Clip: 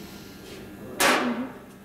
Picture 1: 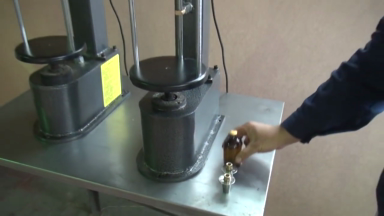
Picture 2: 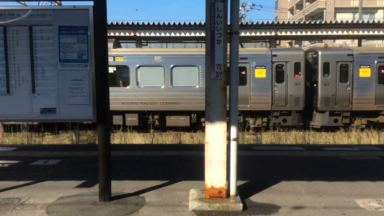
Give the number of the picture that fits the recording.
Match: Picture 1